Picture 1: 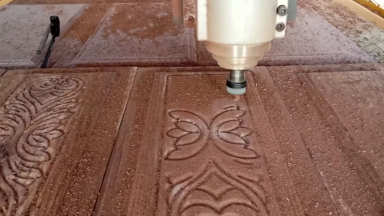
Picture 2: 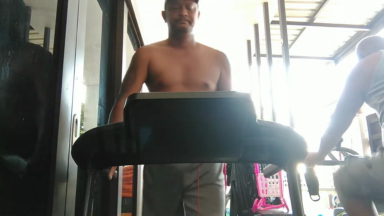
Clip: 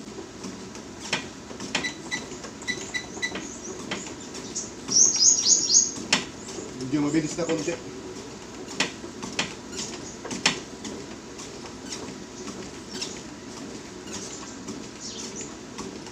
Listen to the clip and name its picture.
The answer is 2